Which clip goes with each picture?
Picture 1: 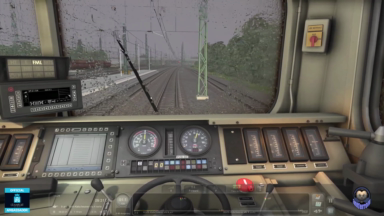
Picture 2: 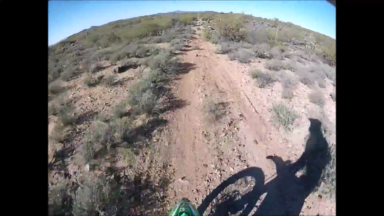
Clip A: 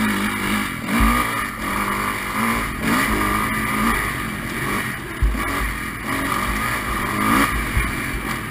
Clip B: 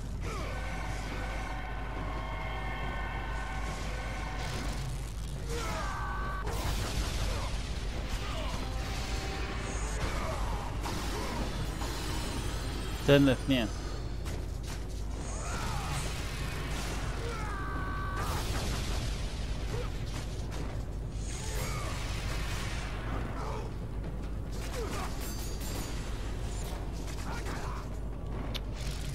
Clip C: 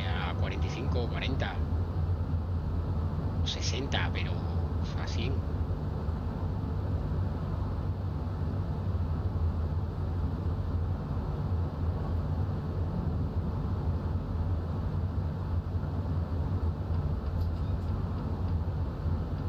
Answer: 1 C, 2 A